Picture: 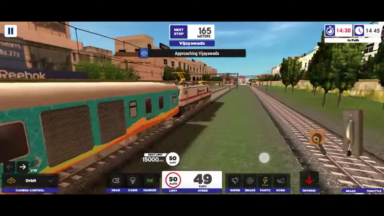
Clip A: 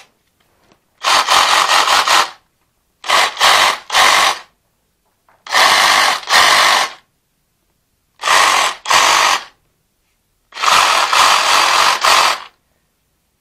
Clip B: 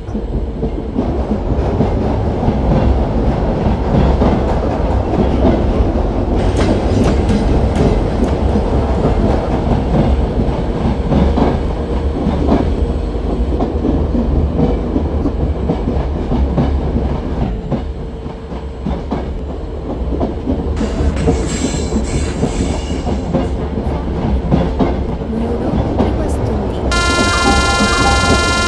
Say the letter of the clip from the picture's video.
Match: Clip B